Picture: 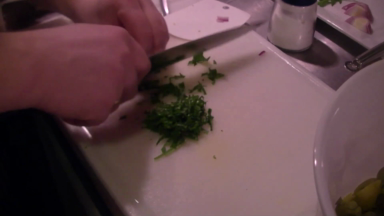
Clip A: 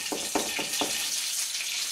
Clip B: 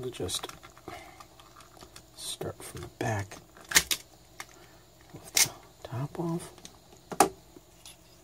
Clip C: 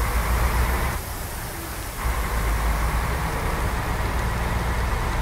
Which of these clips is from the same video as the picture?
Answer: A